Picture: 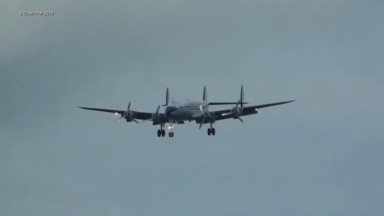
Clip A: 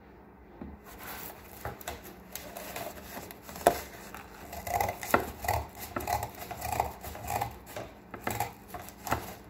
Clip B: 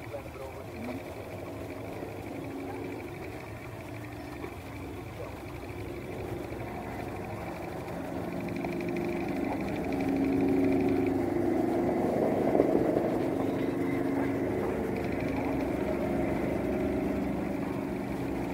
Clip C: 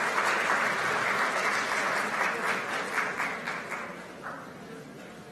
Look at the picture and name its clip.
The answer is B